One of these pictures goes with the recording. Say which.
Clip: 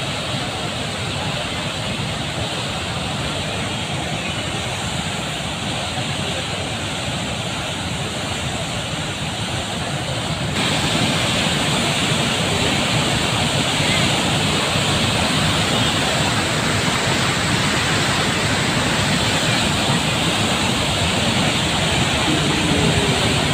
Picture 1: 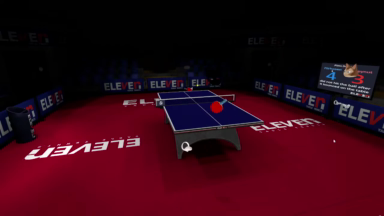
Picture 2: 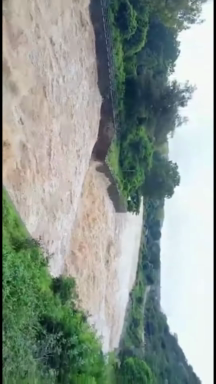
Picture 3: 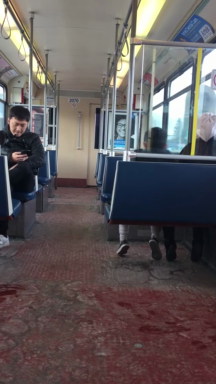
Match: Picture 2